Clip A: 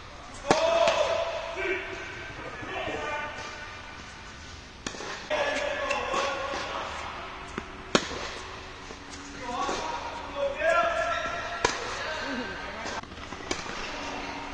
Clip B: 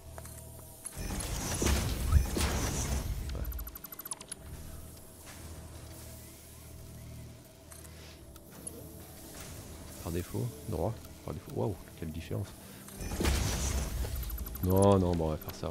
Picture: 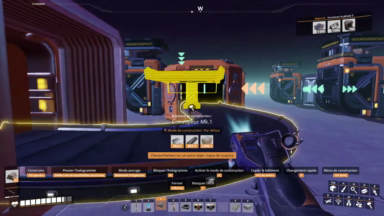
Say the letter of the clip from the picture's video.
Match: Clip B